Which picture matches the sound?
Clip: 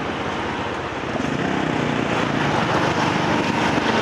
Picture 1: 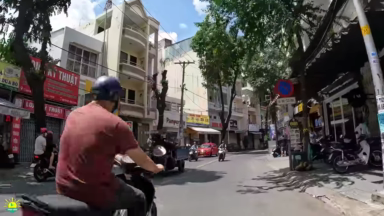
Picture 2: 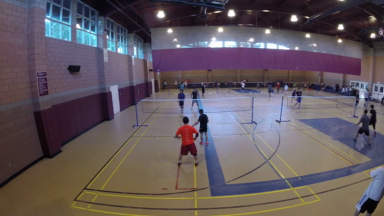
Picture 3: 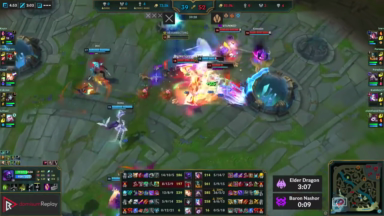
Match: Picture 1